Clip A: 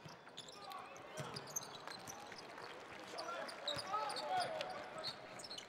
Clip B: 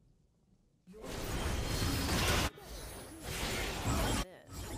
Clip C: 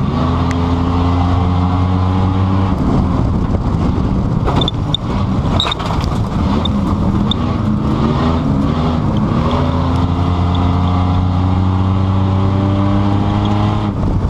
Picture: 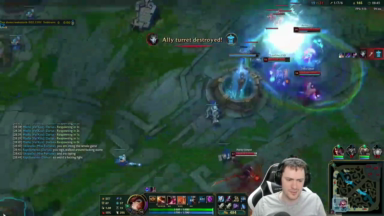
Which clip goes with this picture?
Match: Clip B